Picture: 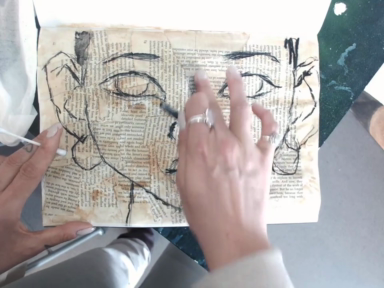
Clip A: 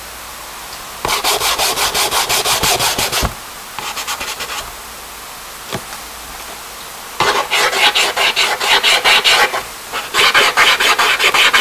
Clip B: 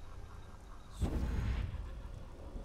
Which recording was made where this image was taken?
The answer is A